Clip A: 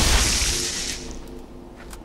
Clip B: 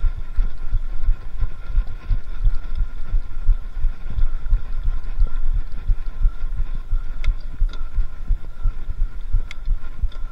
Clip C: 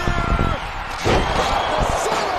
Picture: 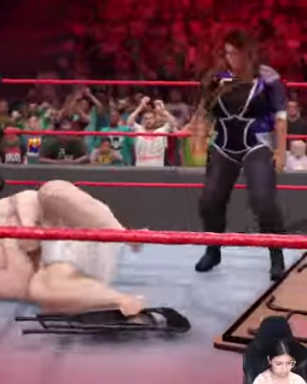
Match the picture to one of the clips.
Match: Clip C